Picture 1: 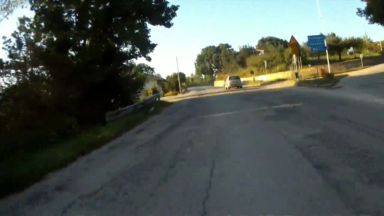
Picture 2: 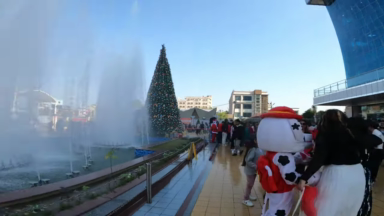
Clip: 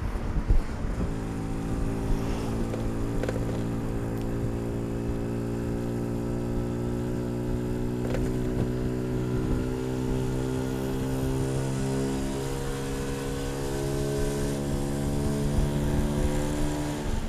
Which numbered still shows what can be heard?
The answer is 1